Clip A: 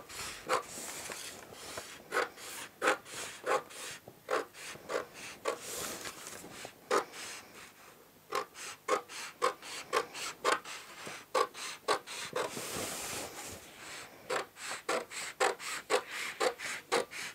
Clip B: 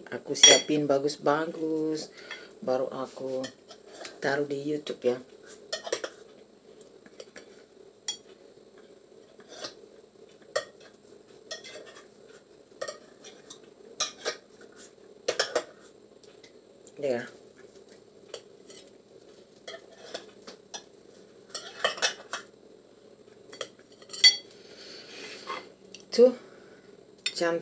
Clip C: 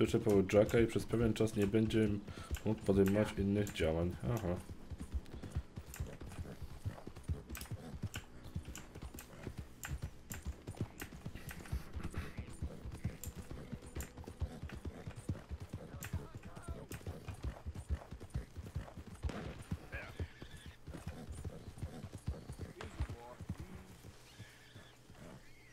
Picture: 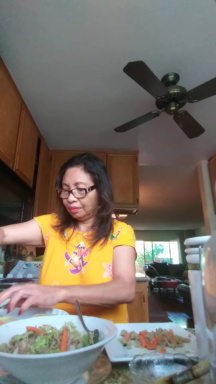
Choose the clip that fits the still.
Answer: B